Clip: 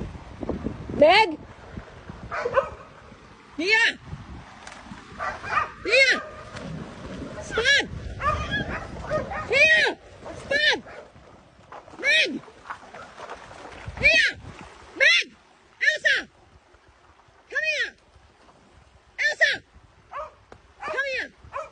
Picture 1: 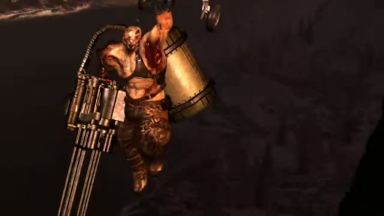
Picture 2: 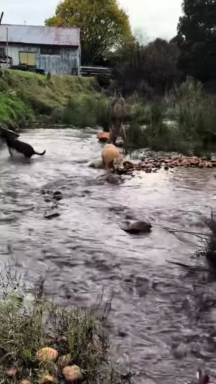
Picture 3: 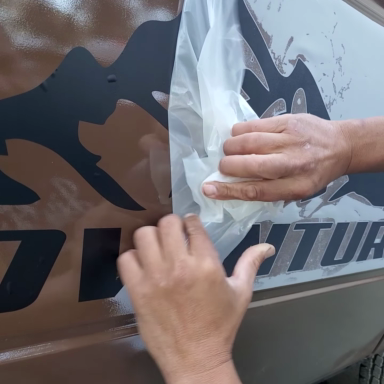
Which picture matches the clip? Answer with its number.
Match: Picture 2